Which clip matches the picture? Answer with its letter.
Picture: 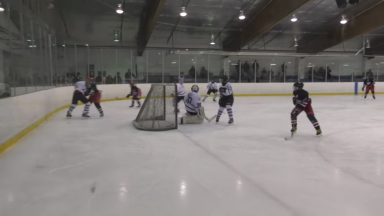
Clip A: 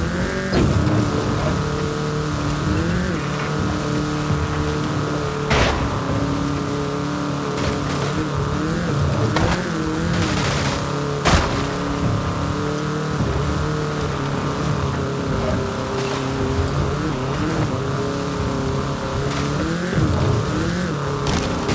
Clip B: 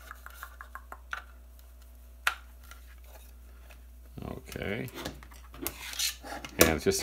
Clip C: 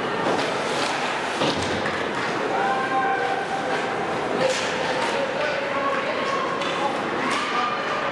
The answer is C